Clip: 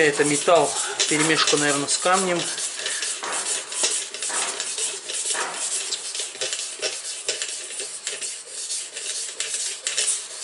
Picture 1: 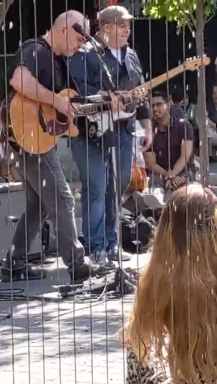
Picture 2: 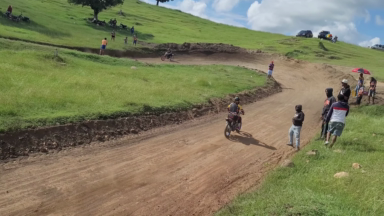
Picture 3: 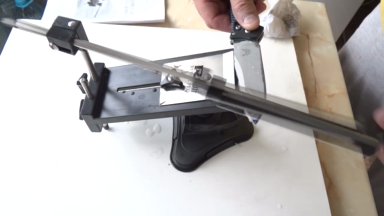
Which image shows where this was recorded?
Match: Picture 3